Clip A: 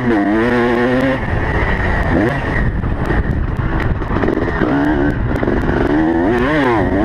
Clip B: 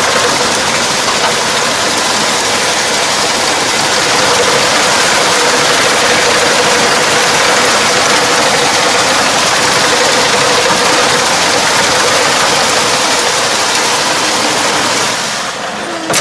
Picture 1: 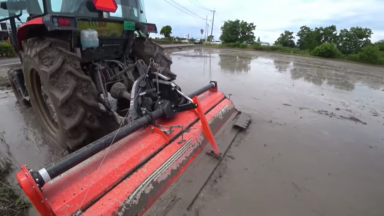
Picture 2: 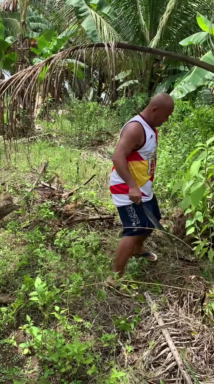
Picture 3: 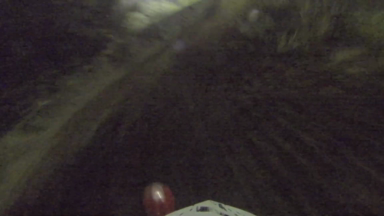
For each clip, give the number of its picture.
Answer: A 3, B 1